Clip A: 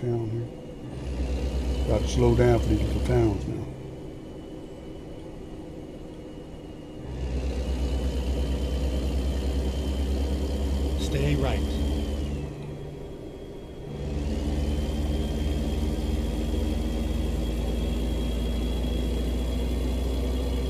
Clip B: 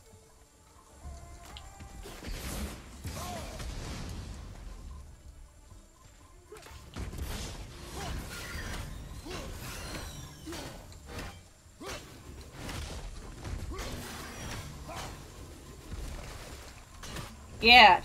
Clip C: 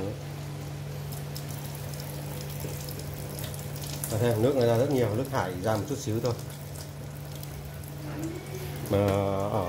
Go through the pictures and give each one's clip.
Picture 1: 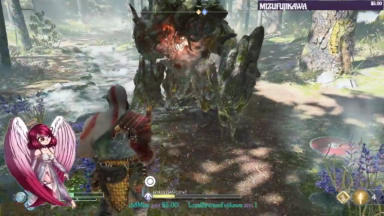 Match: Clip B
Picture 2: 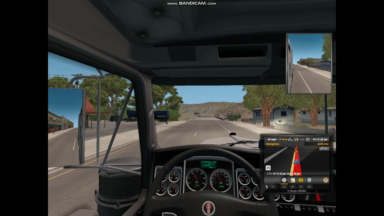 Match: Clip A